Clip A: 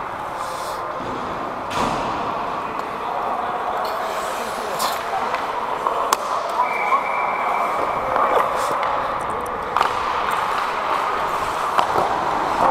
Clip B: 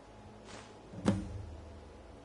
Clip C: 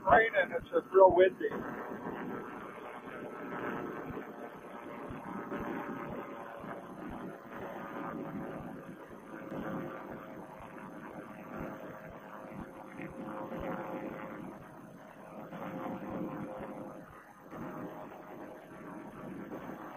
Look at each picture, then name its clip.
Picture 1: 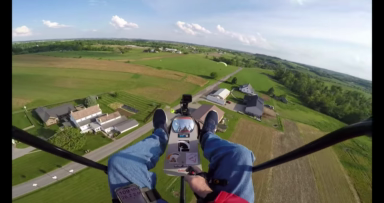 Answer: C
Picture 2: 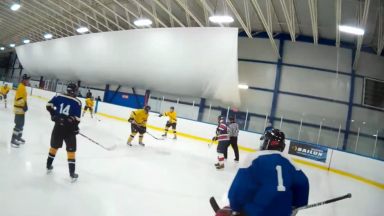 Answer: A